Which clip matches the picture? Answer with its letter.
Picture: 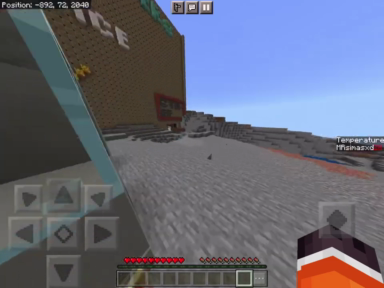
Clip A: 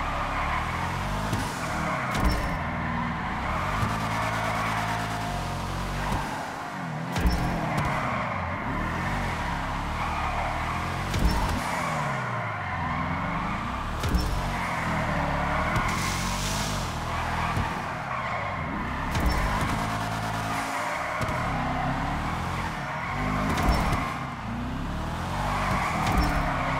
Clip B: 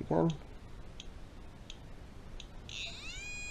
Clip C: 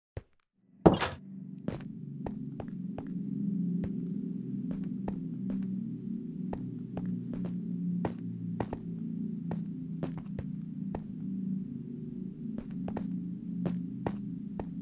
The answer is C